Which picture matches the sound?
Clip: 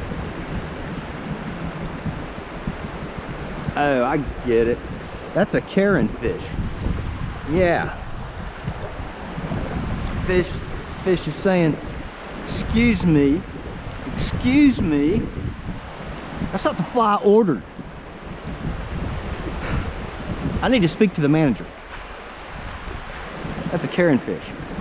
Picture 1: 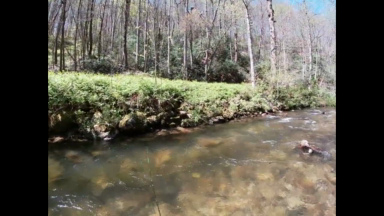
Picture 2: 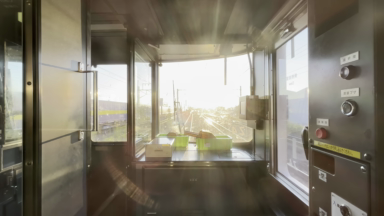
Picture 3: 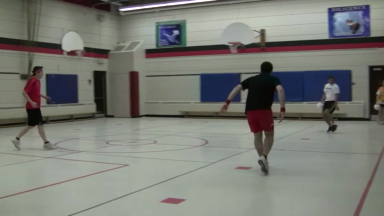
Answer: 1